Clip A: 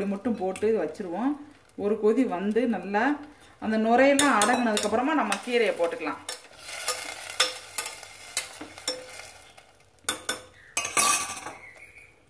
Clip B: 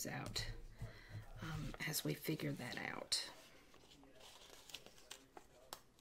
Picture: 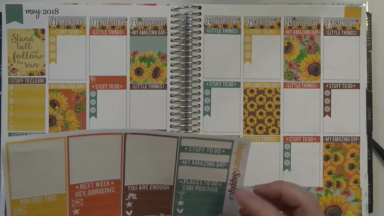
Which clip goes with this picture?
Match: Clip B